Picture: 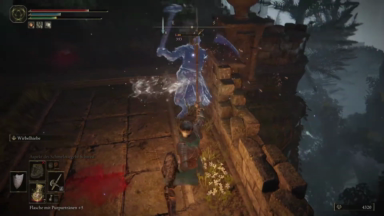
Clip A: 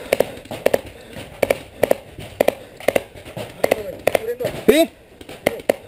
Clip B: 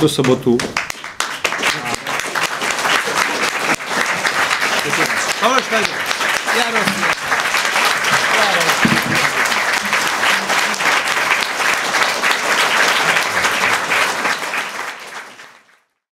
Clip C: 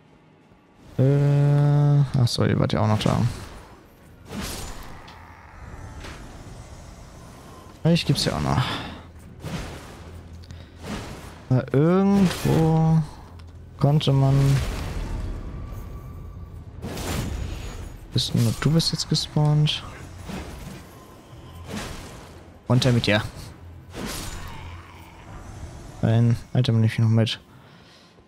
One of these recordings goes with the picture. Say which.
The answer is C